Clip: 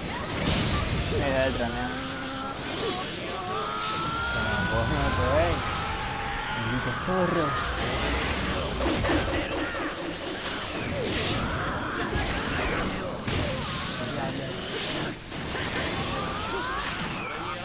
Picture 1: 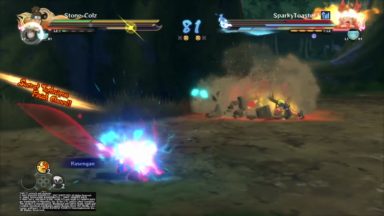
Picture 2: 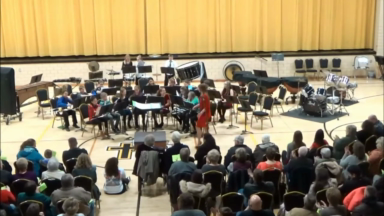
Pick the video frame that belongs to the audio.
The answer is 1